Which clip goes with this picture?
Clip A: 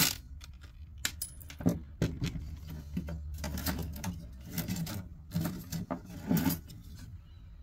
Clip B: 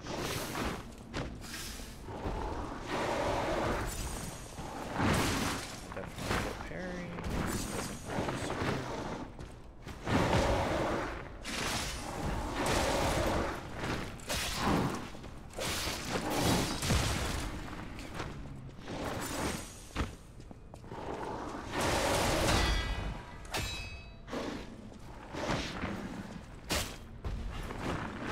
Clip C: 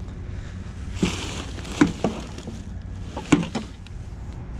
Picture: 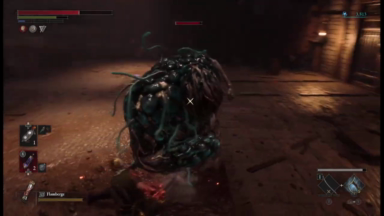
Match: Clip B